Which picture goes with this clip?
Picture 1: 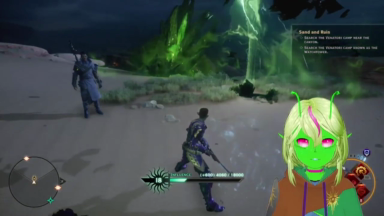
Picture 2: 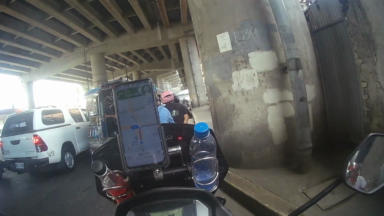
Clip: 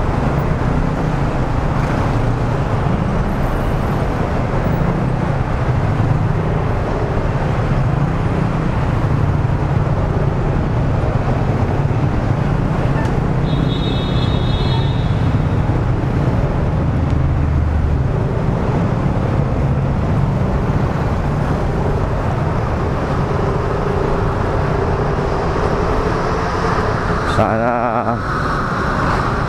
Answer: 2